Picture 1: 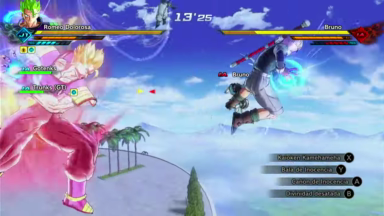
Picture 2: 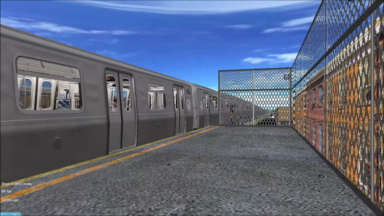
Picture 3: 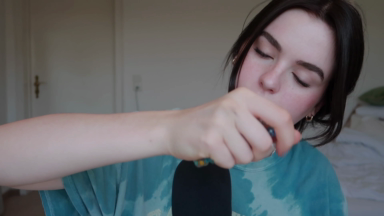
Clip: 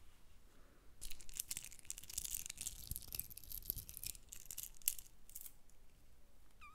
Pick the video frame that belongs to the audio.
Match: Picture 3